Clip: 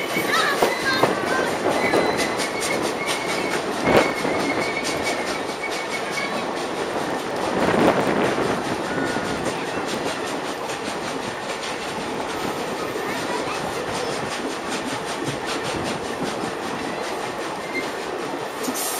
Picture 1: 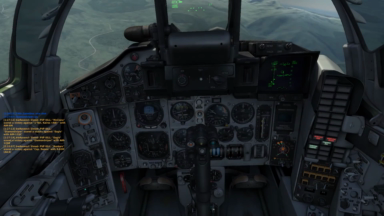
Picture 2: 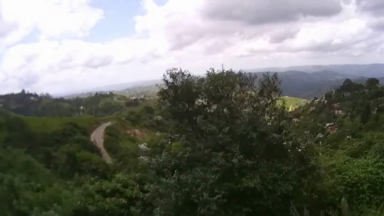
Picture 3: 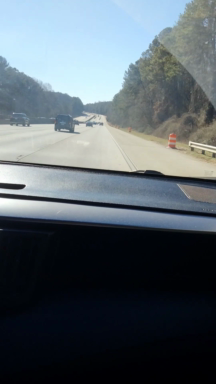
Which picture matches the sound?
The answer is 2